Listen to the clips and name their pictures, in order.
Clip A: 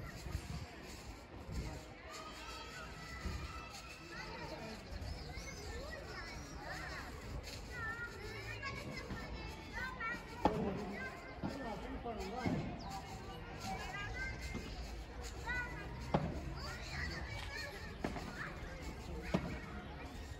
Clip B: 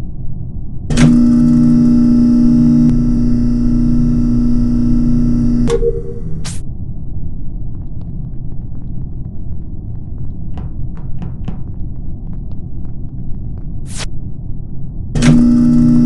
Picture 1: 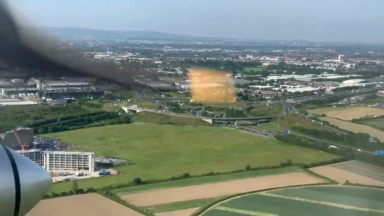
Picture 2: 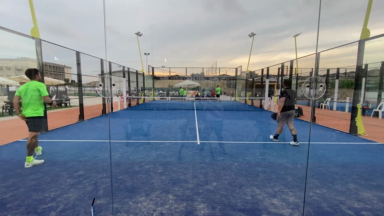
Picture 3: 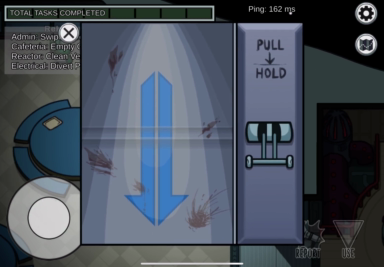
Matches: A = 2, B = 3